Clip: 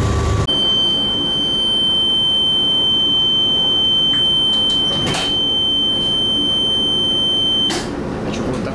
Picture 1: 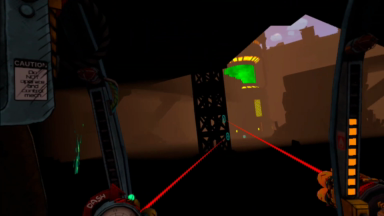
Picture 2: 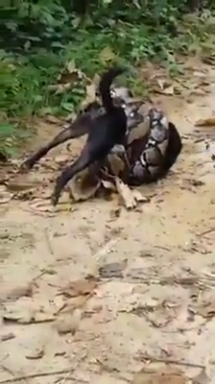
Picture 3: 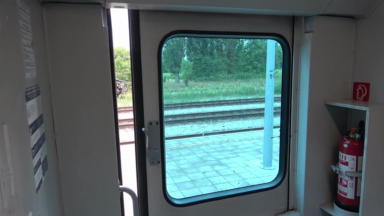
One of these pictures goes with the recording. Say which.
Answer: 3